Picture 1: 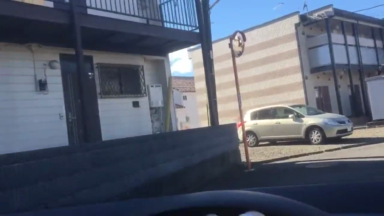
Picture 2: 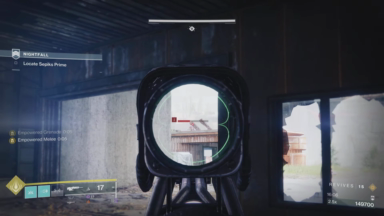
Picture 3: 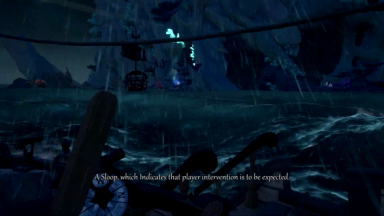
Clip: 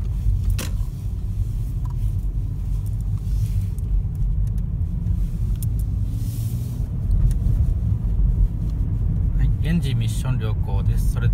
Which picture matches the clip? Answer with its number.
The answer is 1